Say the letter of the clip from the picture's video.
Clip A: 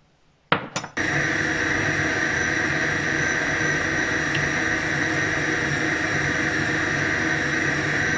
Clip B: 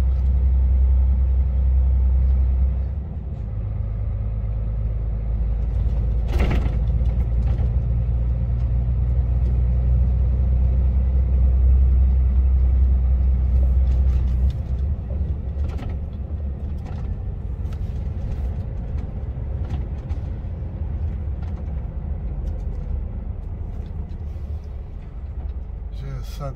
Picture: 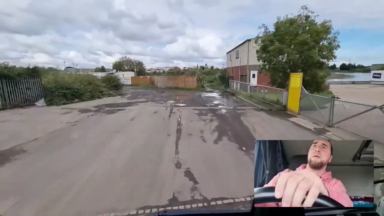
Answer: B